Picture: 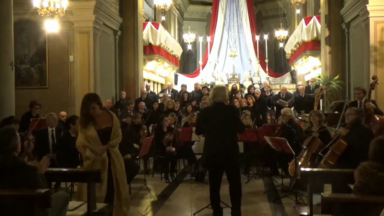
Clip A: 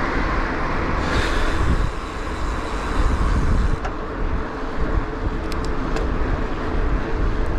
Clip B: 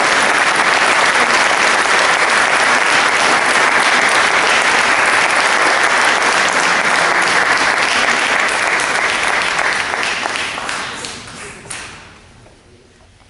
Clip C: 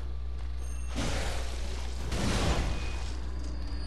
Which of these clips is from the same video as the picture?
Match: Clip B